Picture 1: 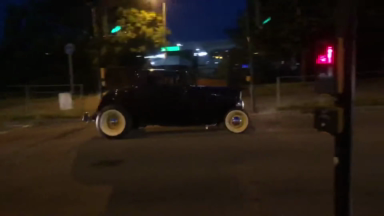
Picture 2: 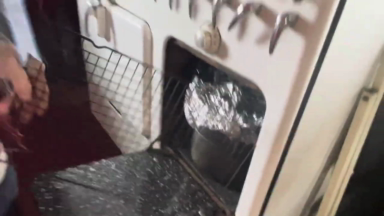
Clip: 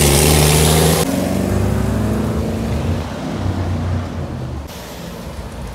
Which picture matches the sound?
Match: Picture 1